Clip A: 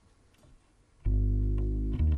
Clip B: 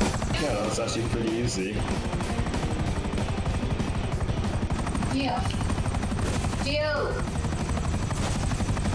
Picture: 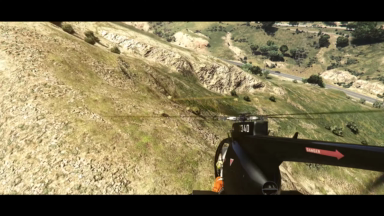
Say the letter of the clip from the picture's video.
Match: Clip B